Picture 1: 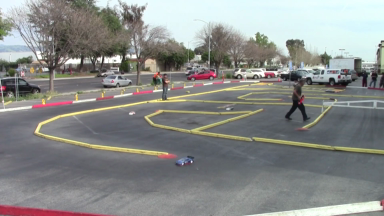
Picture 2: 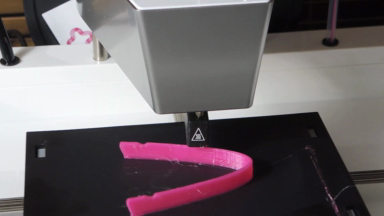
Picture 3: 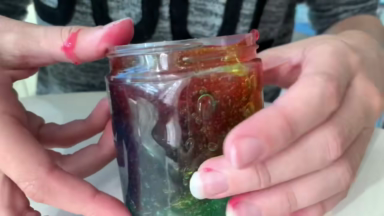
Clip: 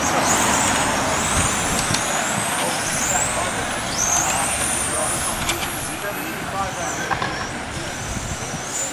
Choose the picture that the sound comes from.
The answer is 1